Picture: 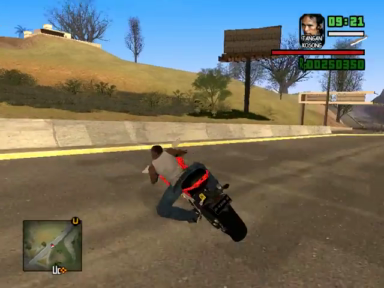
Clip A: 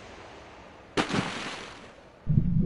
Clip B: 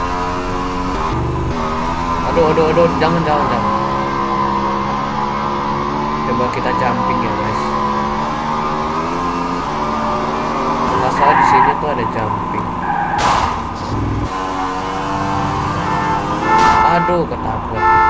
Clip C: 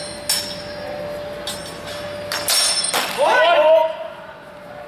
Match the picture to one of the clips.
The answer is B